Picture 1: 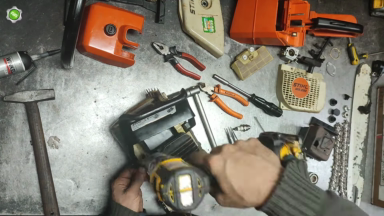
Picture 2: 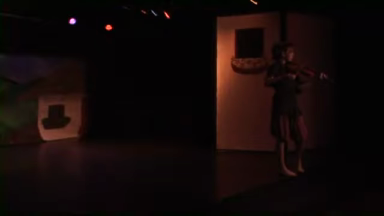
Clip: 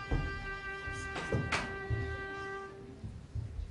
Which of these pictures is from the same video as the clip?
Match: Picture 2